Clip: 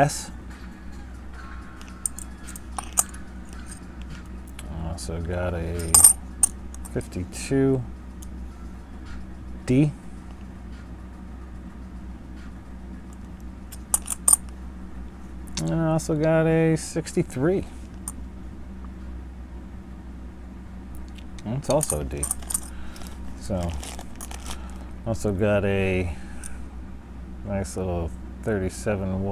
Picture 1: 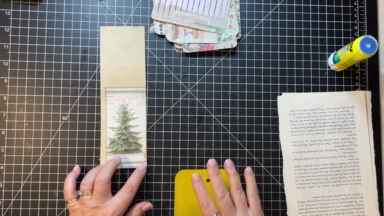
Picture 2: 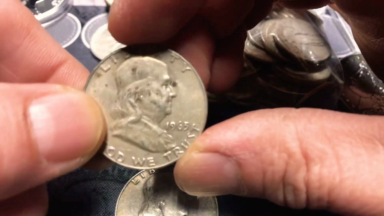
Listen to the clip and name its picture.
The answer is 2